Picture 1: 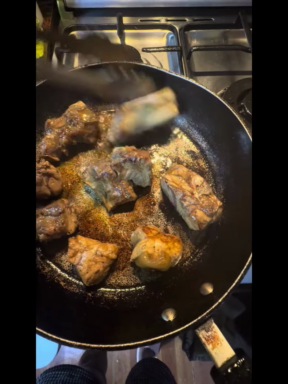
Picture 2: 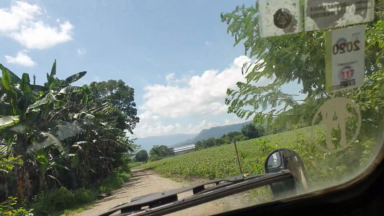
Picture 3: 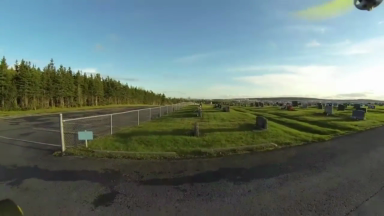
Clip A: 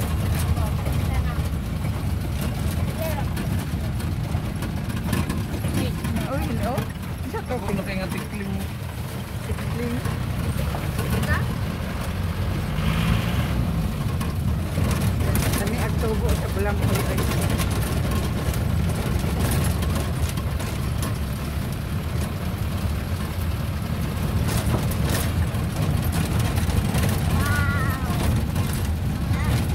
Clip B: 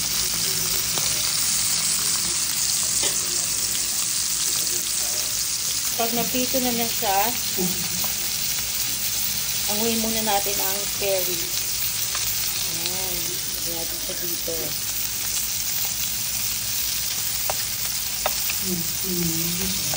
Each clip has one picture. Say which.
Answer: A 2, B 1